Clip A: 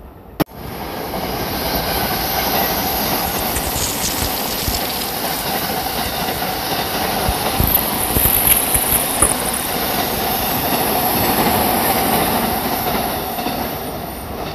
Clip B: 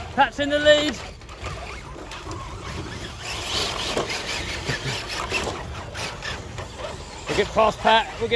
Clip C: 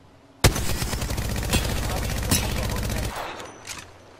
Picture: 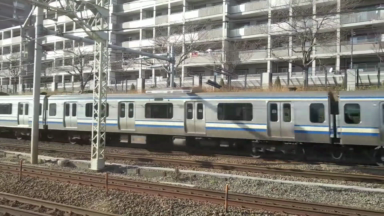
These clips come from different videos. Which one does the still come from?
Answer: A